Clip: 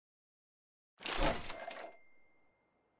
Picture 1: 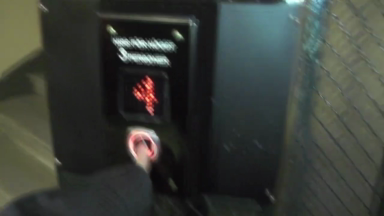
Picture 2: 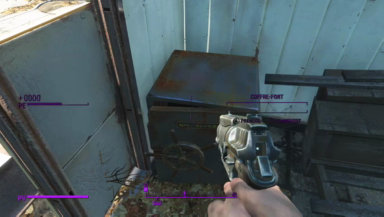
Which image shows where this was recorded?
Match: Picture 2